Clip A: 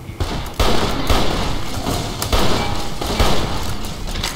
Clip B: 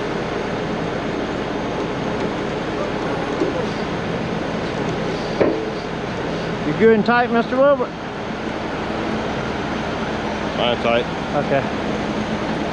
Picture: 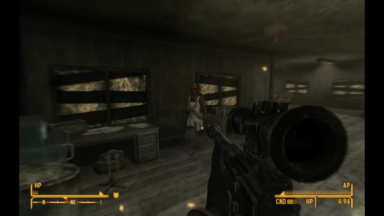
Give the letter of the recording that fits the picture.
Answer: A